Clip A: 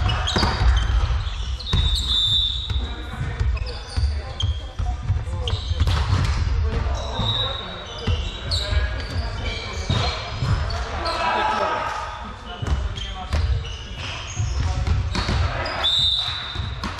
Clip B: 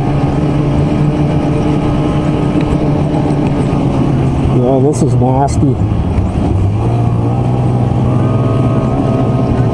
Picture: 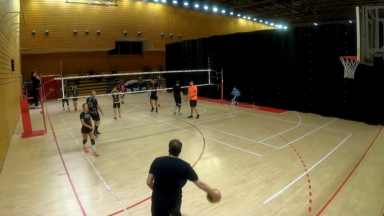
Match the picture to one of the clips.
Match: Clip A